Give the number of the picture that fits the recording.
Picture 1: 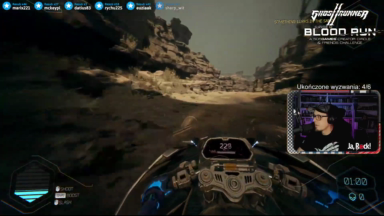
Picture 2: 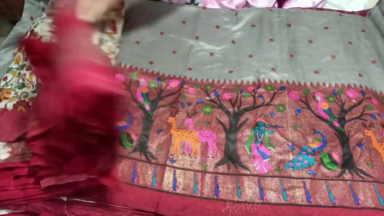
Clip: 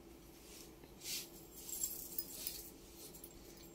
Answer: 2